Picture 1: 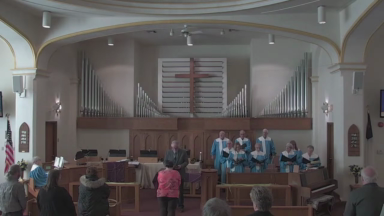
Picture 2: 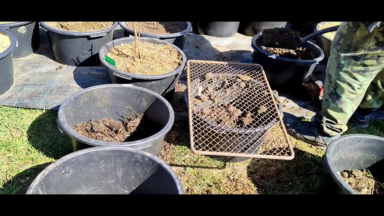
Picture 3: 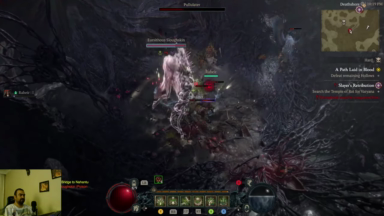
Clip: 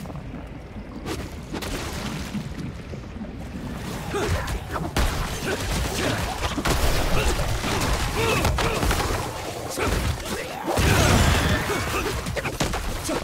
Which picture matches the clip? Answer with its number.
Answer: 3